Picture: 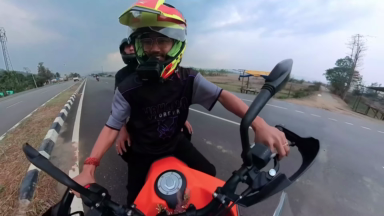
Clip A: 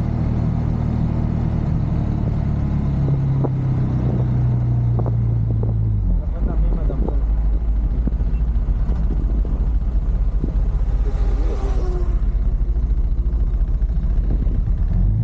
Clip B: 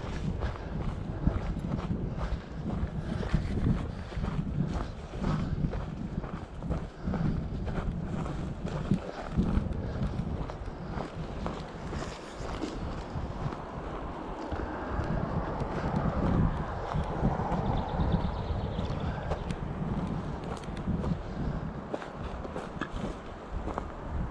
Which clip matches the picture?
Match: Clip A